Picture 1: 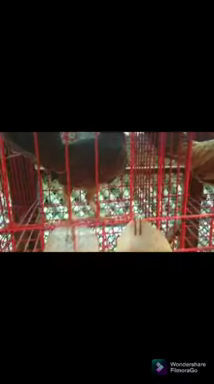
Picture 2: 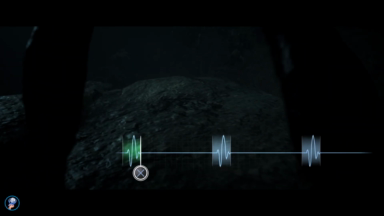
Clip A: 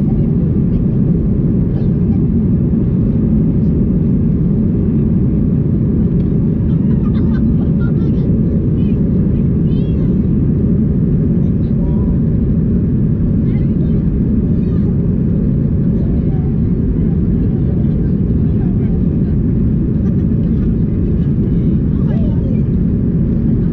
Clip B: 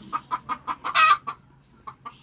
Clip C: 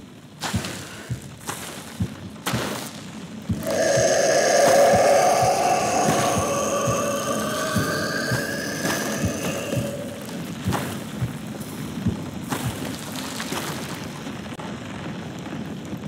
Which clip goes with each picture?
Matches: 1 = B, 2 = C